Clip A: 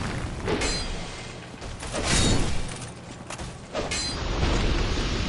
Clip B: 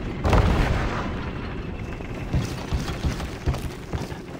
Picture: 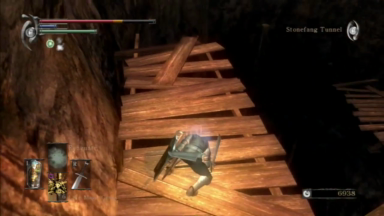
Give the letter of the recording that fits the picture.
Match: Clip B